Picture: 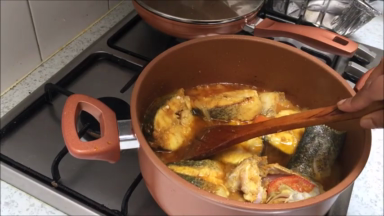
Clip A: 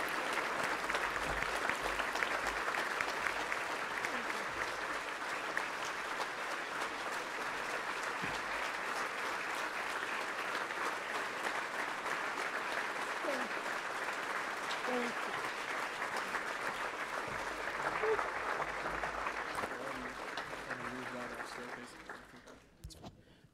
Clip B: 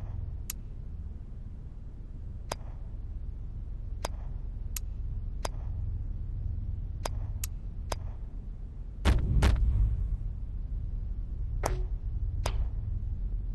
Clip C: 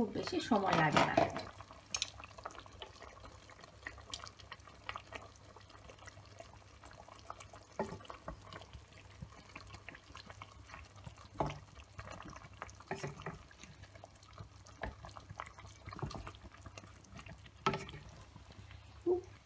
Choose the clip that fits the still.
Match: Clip C